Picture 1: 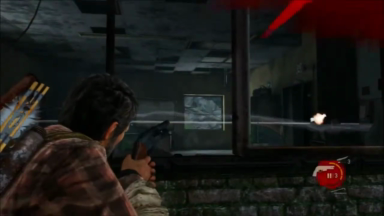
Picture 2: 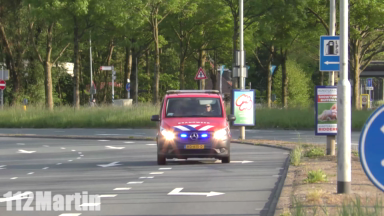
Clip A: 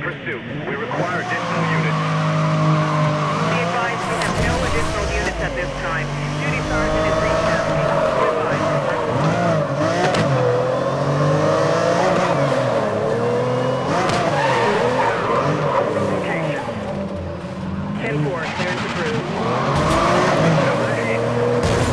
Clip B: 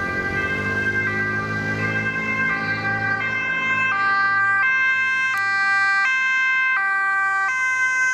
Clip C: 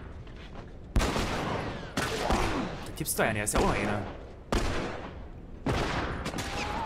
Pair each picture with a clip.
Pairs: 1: C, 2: B